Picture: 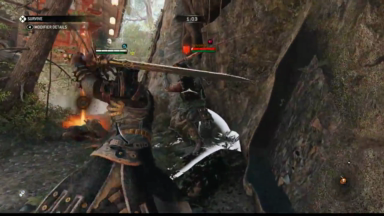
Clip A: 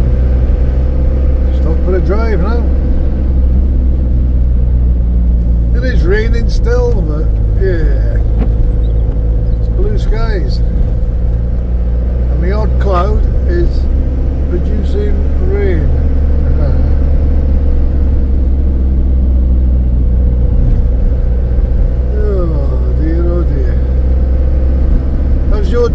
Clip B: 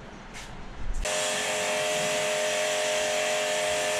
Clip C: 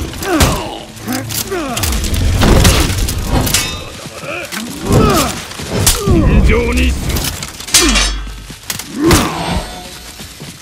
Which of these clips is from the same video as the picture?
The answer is C